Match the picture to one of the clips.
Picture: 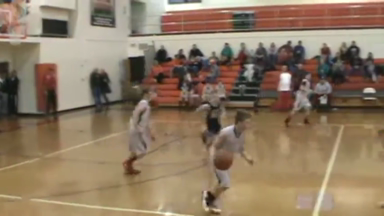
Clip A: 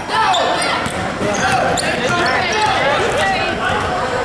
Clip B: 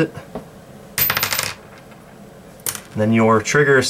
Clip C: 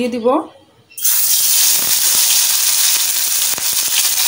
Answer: A